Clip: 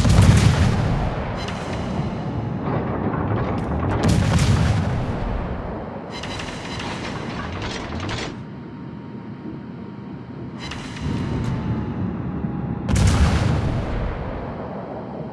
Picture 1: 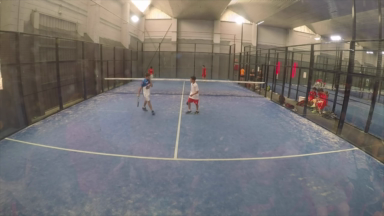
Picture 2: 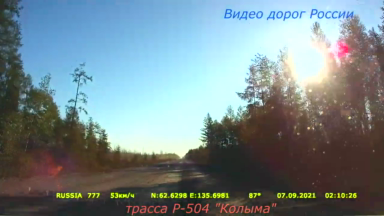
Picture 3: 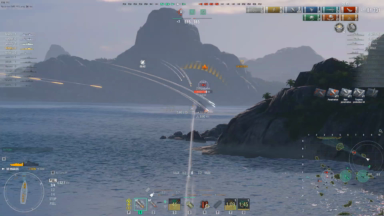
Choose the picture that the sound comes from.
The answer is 3